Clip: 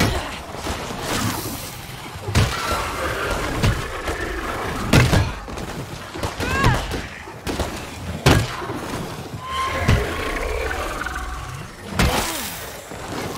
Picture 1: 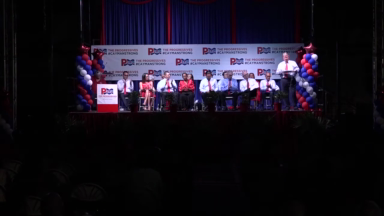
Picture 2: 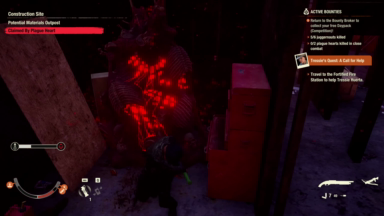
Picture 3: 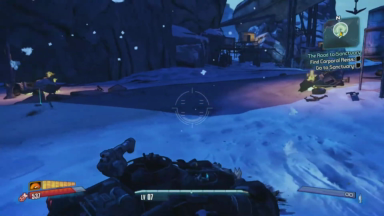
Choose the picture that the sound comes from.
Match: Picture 2